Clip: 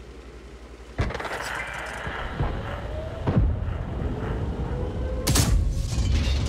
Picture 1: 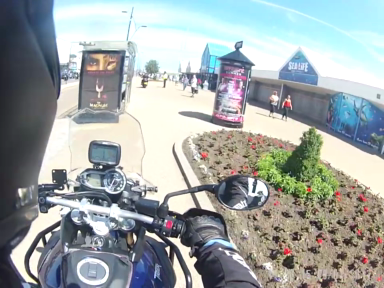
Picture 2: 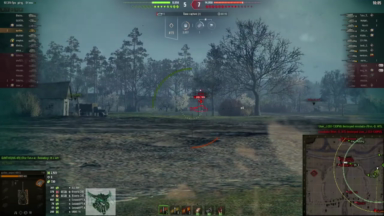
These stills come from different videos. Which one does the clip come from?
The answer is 2